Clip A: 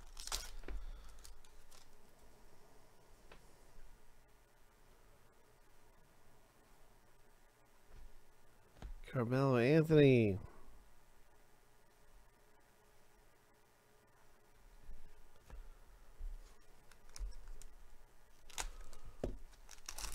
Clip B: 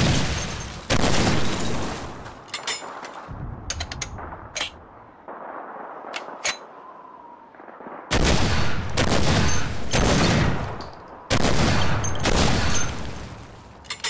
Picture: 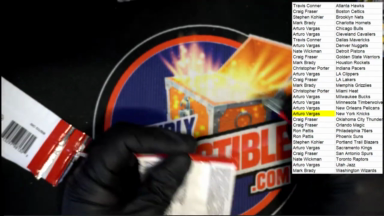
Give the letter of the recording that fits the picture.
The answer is A